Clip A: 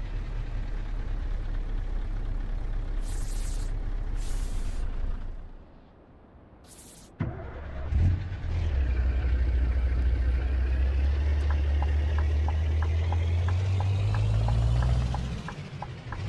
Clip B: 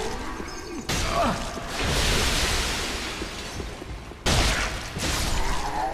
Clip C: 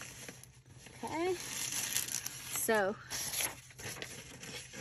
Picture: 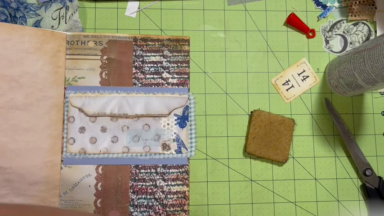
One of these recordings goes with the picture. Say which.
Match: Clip C